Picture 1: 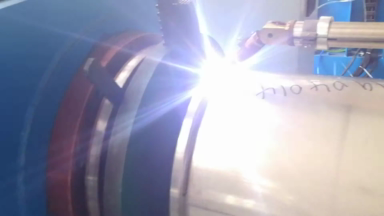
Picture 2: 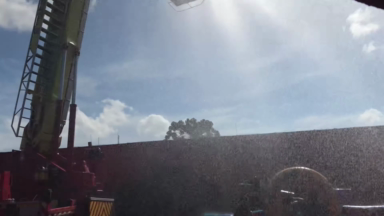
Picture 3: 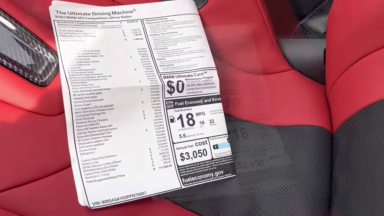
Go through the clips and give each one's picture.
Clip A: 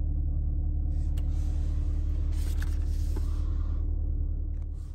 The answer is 3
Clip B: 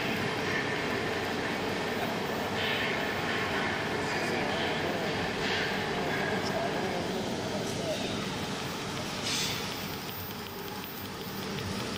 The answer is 1